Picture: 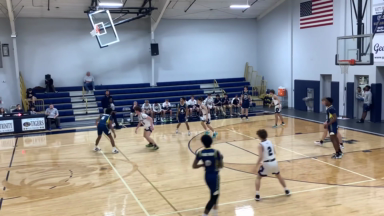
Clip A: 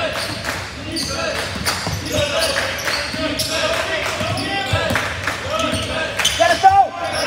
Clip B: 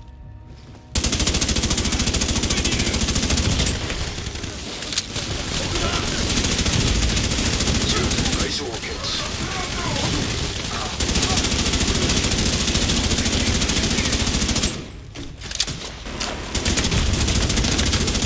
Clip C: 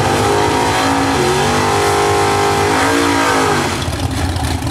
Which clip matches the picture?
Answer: A